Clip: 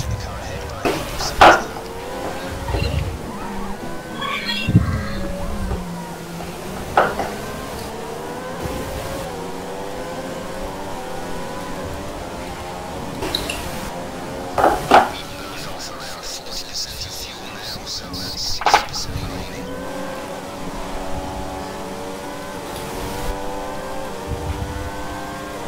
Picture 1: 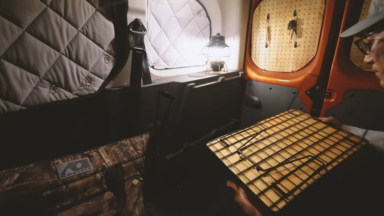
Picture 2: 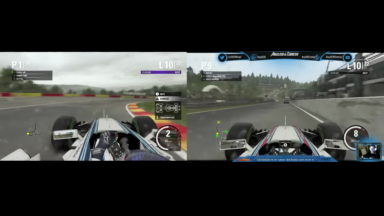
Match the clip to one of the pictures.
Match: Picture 2